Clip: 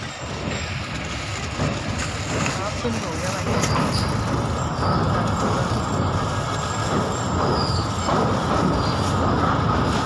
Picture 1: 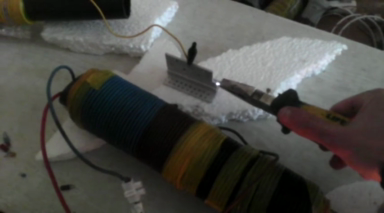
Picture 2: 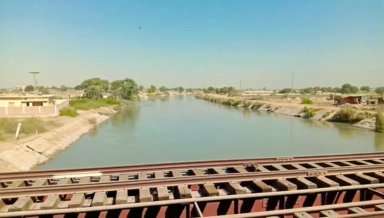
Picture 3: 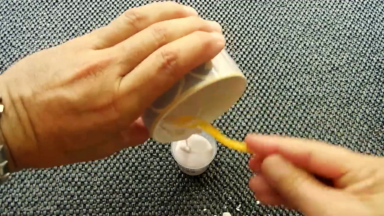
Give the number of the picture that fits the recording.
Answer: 2